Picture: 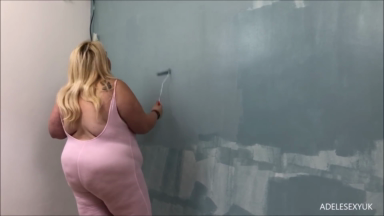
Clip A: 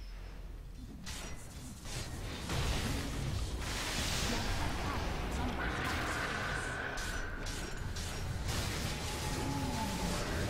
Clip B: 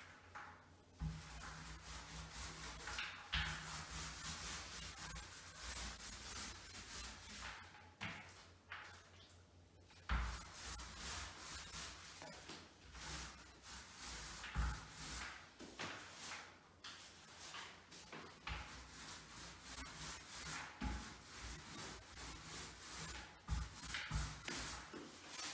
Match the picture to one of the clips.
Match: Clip B